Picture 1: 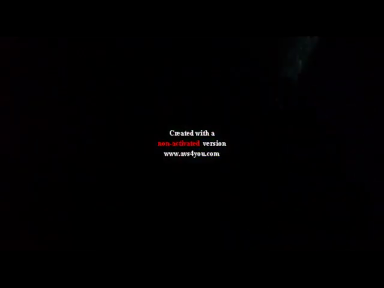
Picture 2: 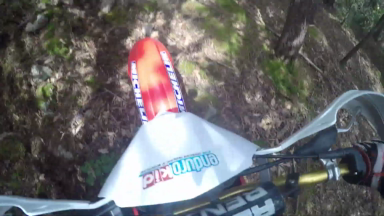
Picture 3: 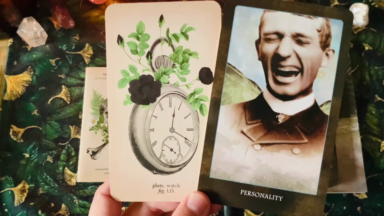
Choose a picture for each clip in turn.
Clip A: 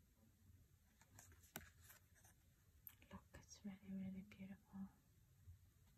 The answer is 3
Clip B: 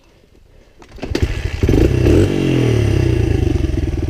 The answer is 2